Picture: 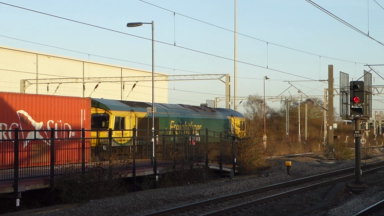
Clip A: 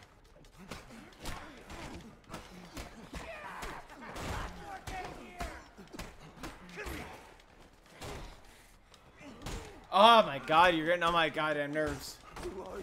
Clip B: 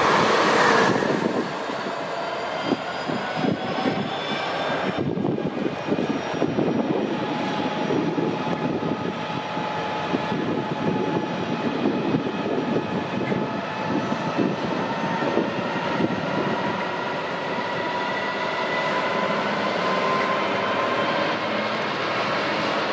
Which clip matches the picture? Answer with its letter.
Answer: B